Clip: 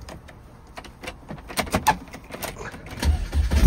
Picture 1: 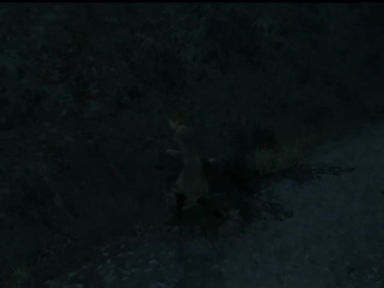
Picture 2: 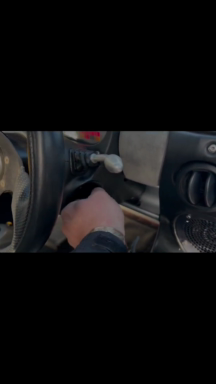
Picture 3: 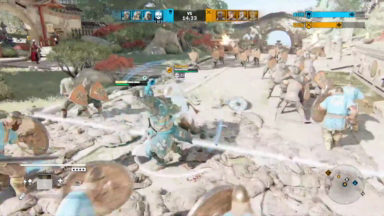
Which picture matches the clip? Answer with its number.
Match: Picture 2